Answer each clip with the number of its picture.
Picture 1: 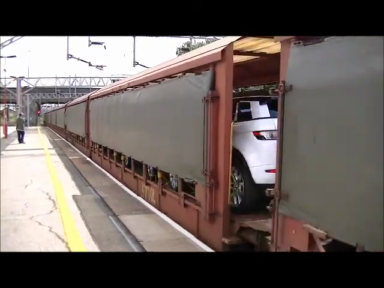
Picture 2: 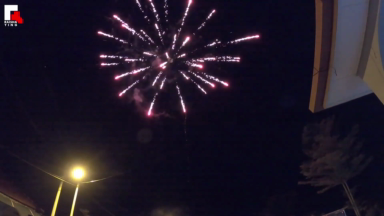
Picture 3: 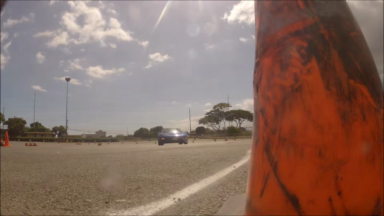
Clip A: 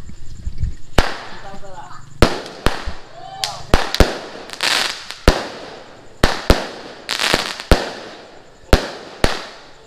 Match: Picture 2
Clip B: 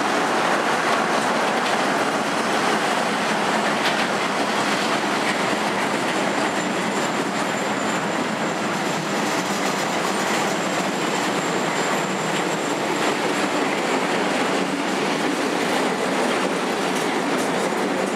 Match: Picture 1